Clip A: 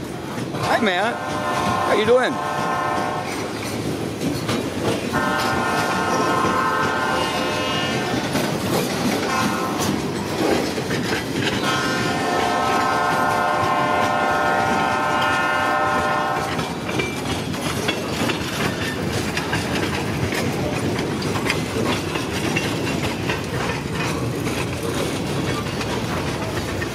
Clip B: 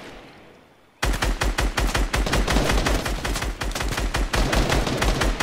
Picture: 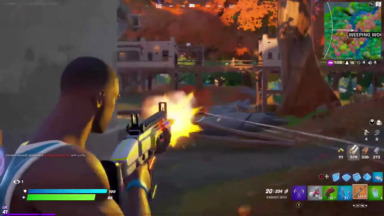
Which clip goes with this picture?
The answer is B